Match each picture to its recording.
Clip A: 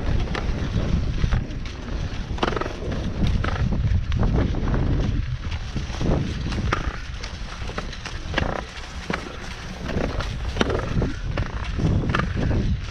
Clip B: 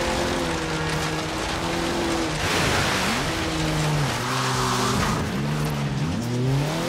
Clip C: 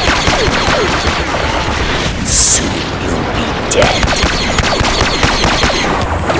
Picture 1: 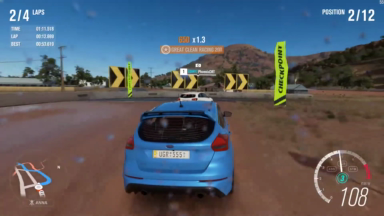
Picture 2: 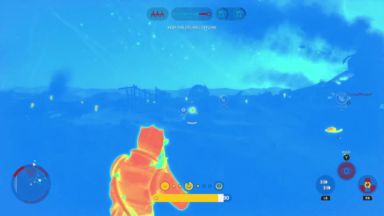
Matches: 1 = B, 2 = C